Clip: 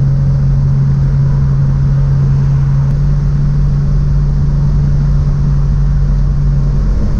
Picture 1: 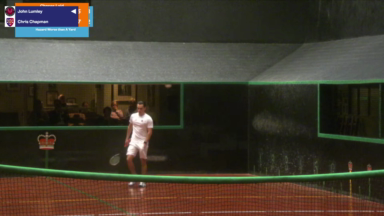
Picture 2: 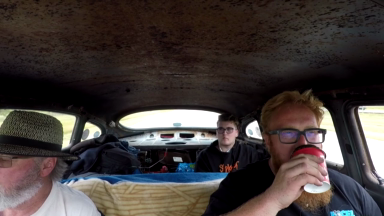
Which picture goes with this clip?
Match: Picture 2